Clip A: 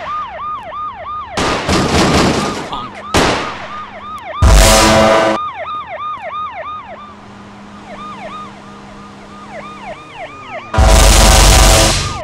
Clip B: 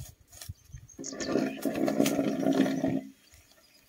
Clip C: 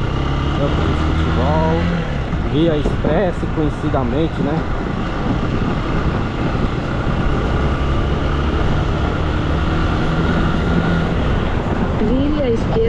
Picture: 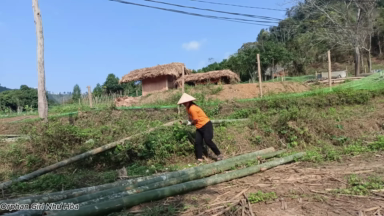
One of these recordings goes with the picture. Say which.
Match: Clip B